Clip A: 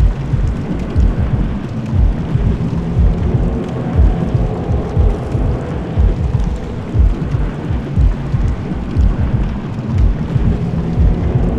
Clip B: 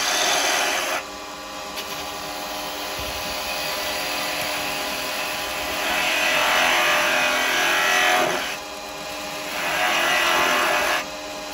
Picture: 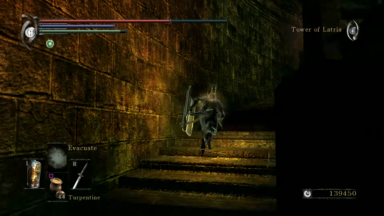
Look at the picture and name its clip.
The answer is A